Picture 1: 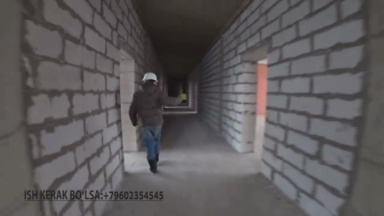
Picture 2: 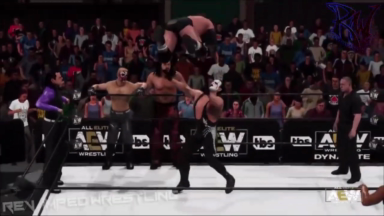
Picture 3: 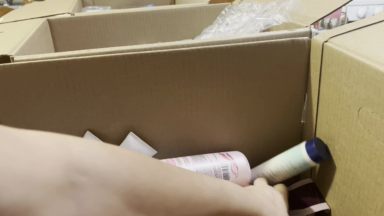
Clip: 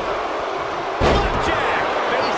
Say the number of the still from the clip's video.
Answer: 2